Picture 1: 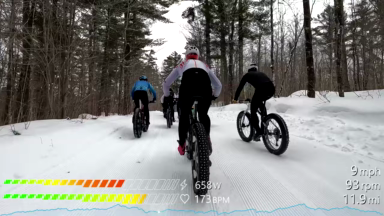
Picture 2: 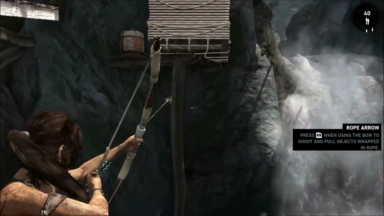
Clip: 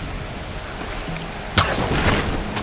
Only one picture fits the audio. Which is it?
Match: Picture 2